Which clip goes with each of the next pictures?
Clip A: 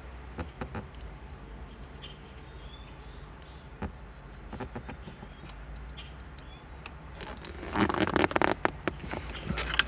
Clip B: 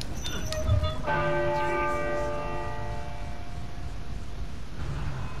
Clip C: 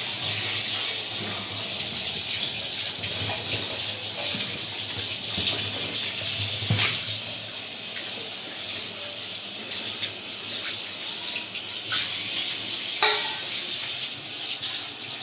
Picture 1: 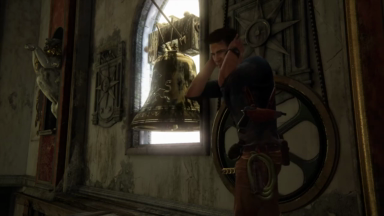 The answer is B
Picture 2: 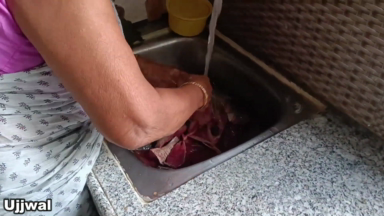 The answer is C